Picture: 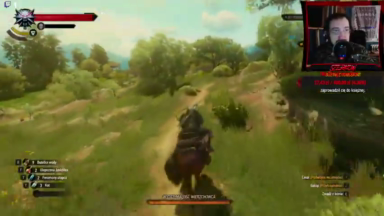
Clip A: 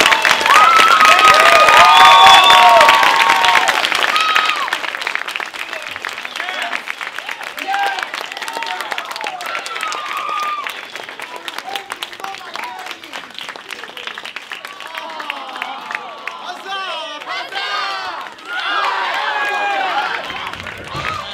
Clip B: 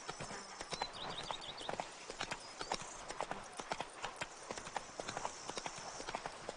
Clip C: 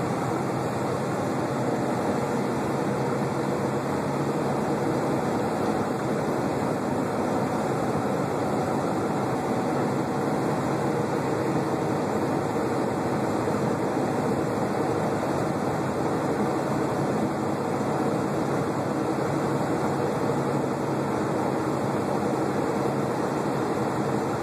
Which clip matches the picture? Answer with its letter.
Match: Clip B